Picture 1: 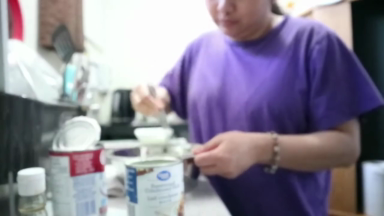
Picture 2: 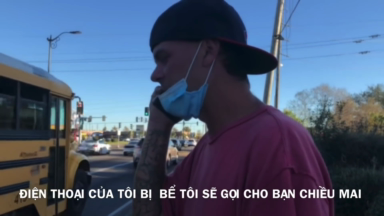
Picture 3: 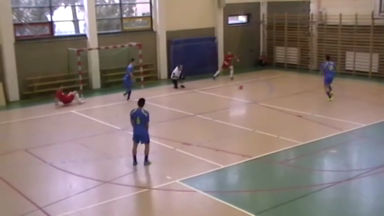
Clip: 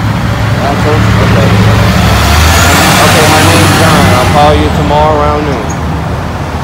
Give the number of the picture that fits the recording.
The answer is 2